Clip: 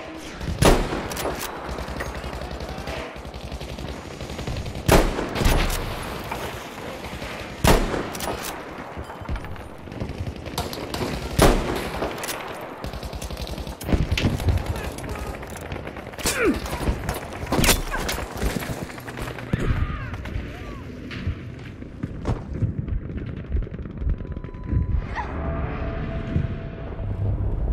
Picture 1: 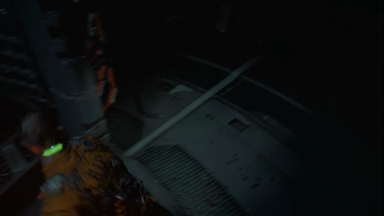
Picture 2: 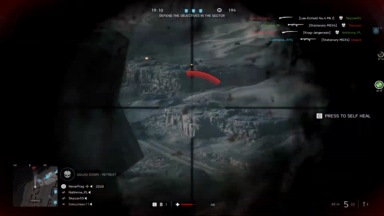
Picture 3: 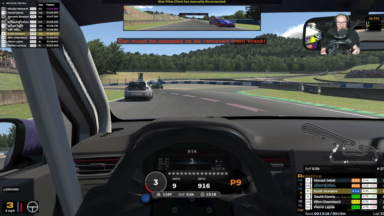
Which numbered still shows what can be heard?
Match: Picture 2